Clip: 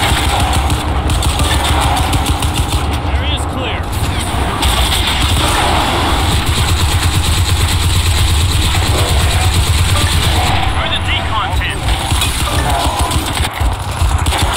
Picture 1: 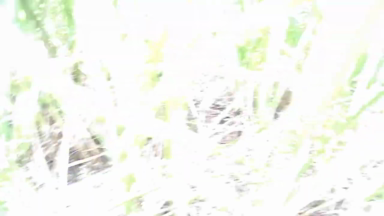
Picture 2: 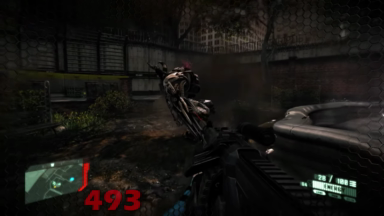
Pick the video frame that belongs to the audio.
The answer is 2